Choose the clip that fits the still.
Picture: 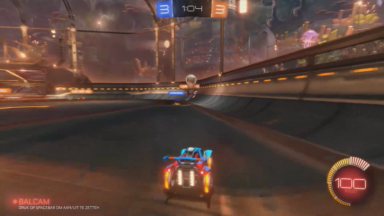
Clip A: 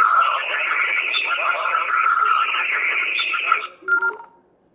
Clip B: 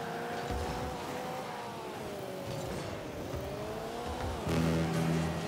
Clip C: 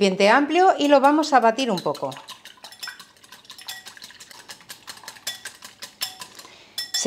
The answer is B